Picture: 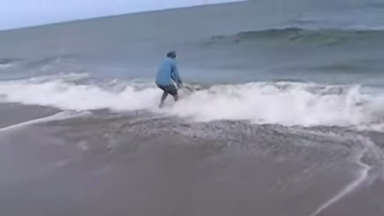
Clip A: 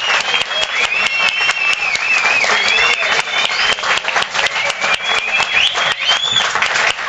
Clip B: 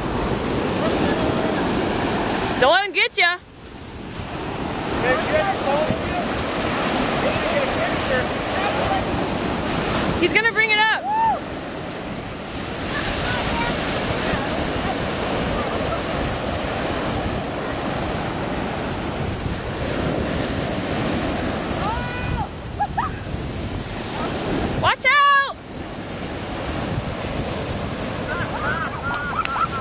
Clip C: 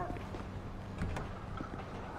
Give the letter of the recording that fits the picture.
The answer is B